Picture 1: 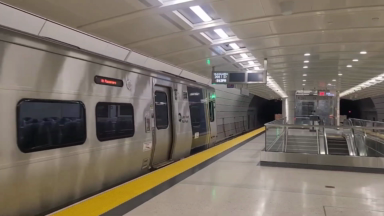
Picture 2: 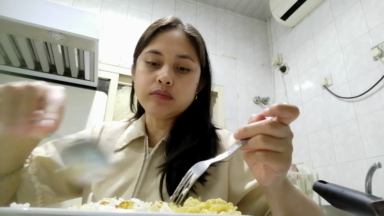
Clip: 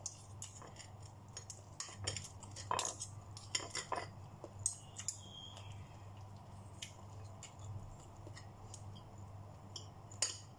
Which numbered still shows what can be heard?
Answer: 2